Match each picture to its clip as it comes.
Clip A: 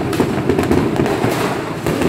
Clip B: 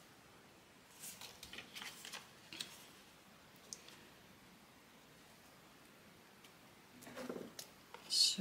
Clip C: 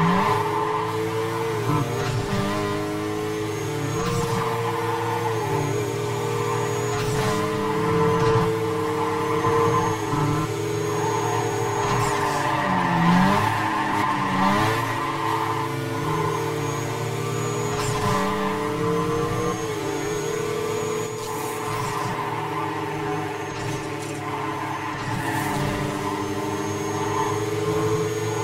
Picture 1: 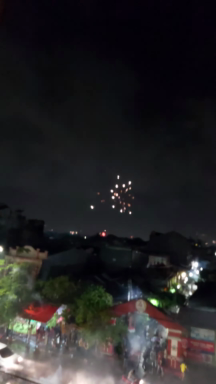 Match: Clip A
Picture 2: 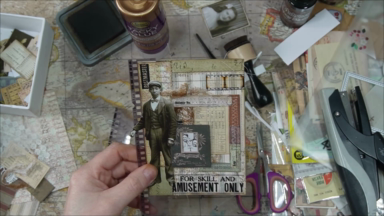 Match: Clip B